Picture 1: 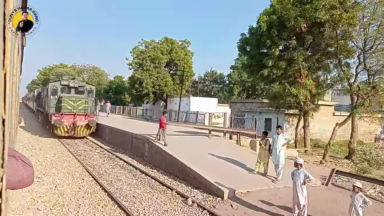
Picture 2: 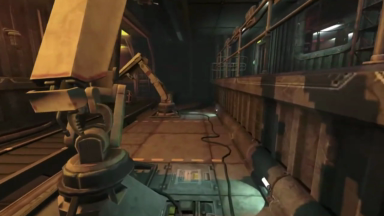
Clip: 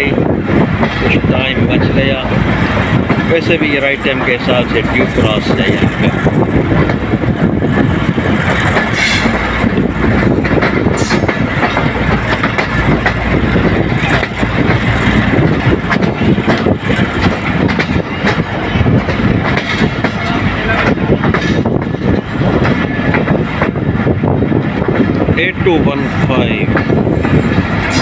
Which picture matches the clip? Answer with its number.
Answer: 1